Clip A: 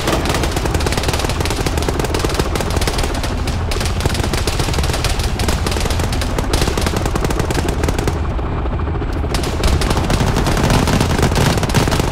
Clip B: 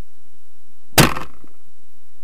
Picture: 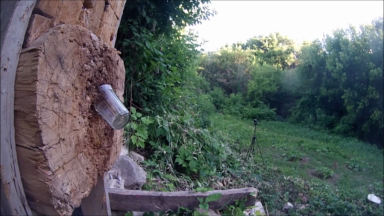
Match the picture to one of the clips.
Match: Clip B